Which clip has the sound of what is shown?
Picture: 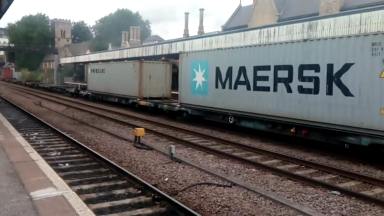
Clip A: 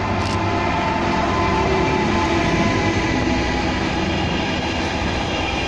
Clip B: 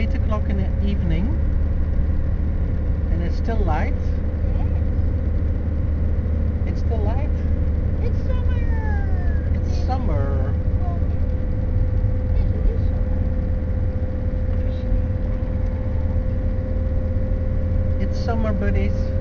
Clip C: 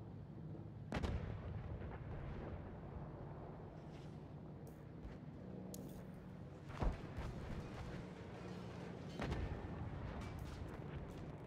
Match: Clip A